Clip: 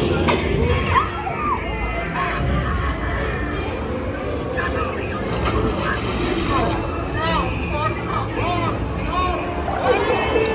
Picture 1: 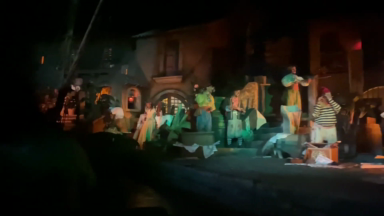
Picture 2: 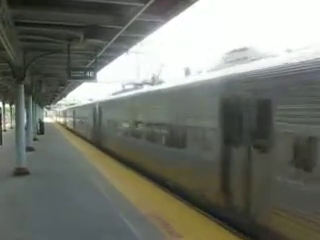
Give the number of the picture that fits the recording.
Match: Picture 1